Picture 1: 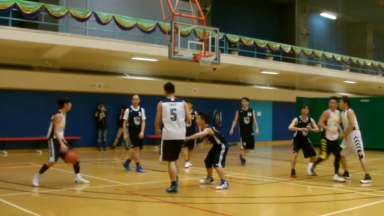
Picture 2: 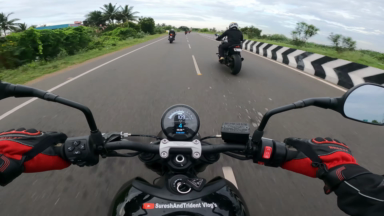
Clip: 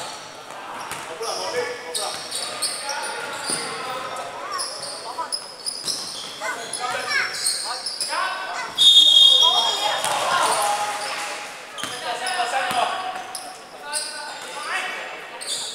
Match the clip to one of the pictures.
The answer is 1